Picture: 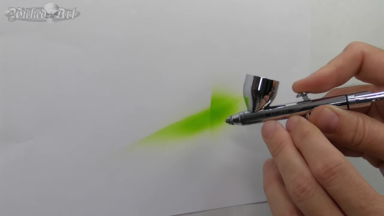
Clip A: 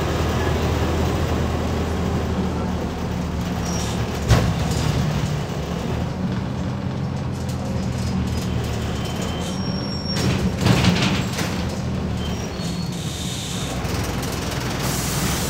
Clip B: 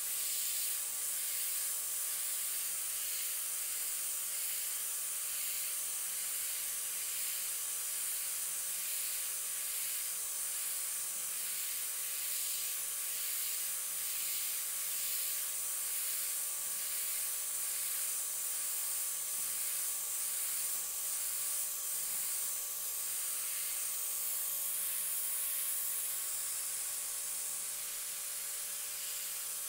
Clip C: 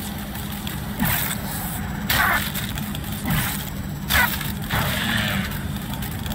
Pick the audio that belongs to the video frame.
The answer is B